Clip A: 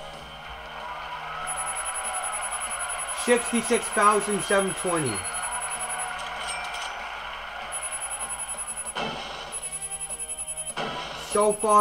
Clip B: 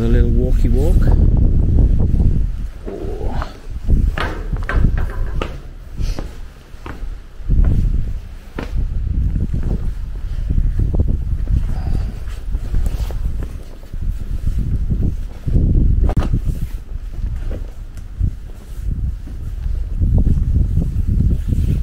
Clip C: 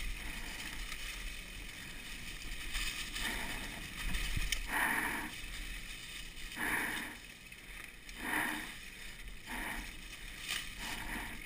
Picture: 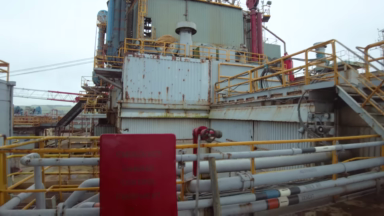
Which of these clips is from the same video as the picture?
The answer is B